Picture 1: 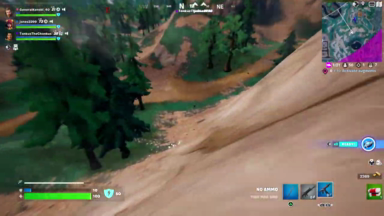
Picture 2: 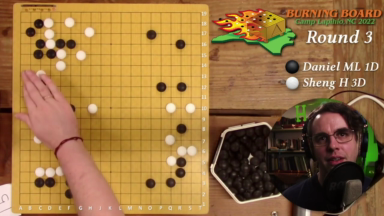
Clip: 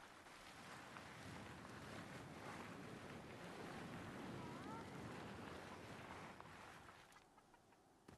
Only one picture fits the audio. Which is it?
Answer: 1